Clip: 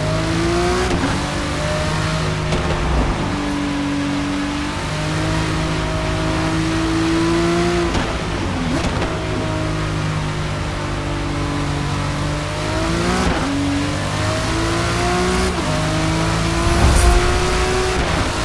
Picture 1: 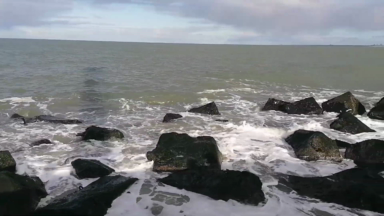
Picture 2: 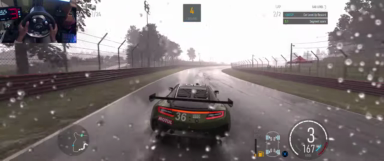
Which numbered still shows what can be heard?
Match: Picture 2